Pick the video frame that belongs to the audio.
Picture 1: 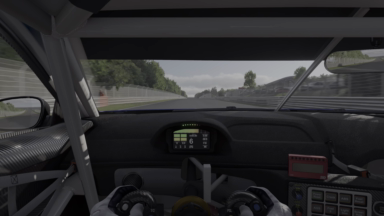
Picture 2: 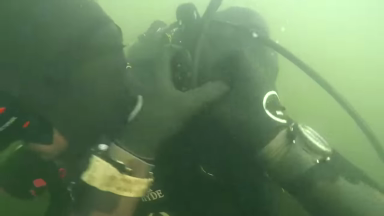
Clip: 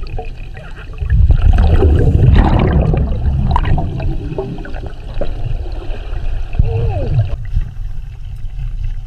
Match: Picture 2